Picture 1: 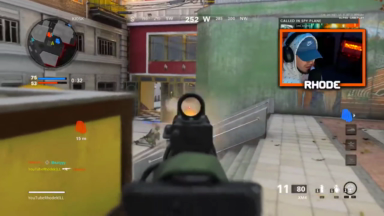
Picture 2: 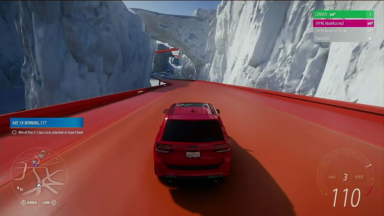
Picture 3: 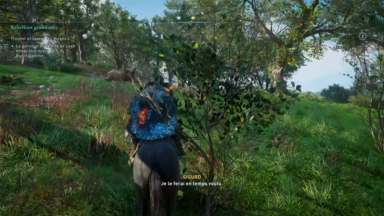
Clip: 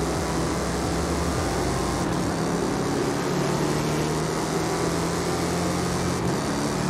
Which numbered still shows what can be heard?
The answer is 2